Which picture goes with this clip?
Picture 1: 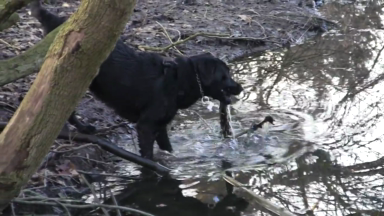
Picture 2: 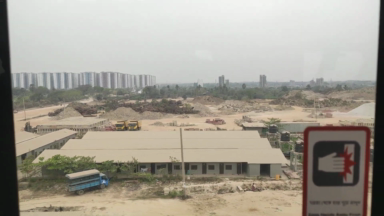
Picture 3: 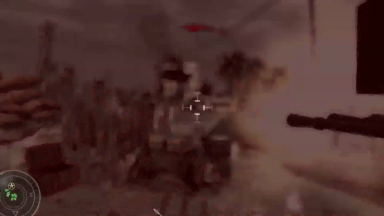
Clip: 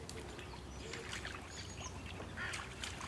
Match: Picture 1